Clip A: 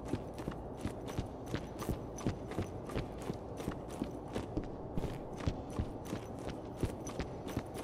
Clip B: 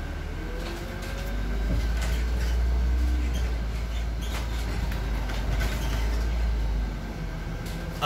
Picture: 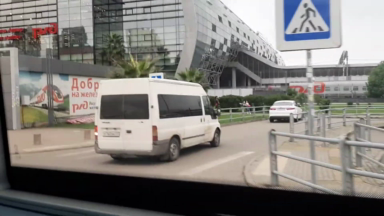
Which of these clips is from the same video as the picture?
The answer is B